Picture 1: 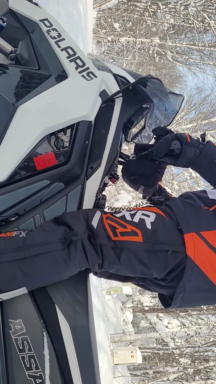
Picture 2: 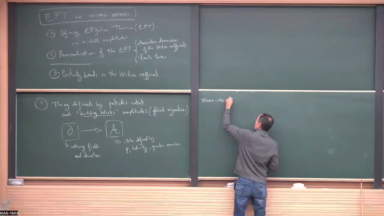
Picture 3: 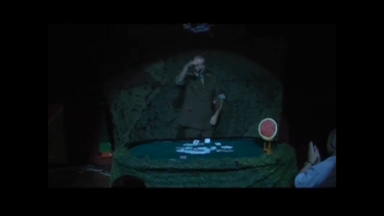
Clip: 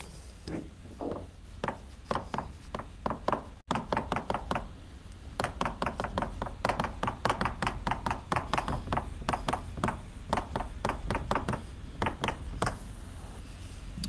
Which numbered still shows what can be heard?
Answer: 2